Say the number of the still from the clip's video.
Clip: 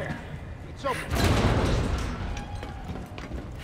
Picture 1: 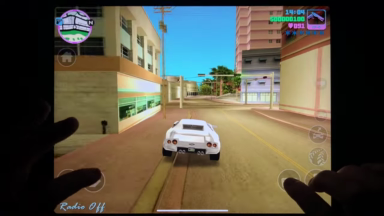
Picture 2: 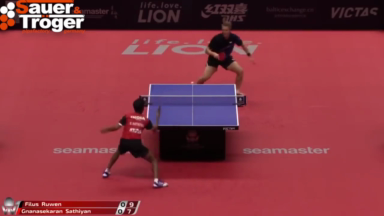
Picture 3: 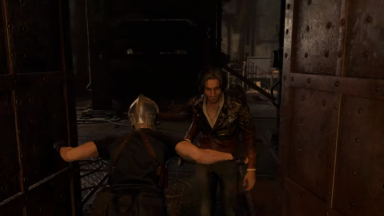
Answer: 3